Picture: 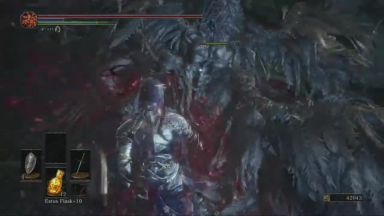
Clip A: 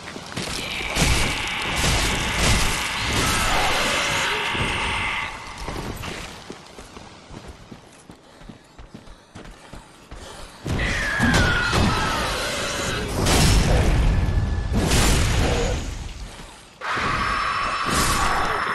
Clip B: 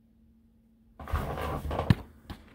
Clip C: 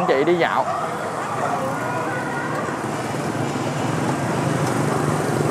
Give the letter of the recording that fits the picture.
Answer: A